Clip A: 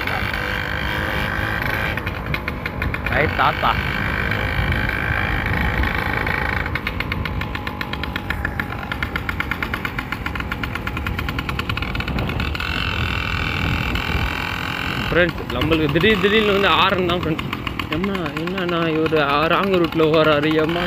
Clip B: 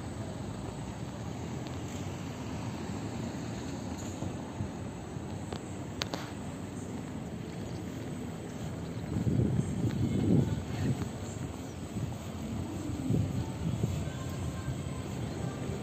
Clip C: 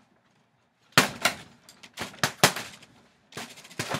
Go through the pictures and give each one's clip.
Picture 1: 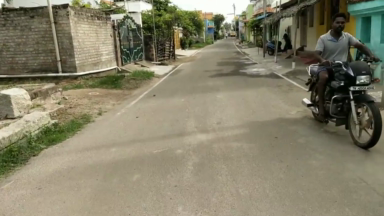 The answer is A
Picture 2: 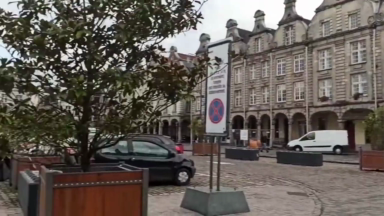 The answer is B